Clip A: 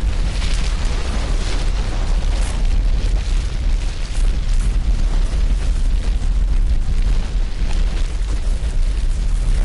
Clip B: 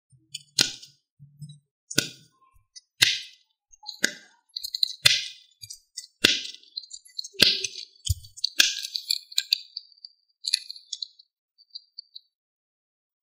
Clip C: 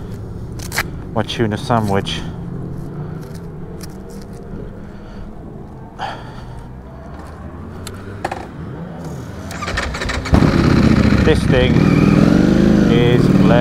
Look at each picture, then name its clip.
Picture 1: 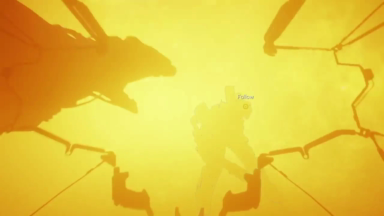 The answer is A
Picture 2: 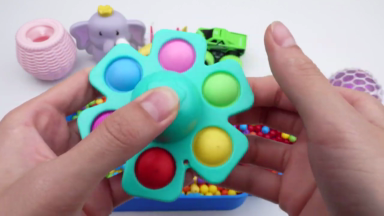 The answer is B